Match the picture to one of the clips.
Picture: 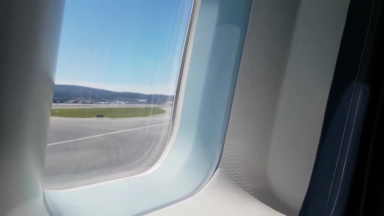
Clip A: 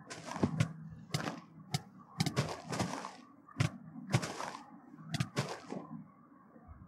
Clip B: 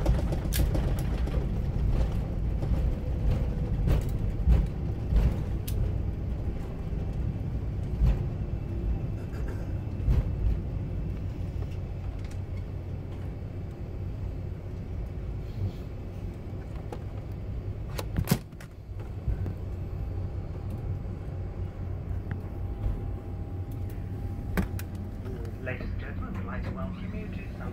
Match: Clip B